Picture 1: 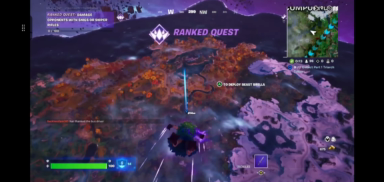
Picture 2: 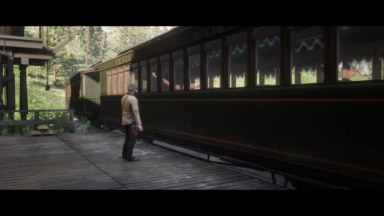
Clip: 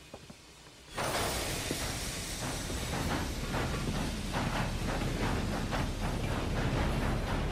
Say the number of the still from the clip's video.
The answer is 2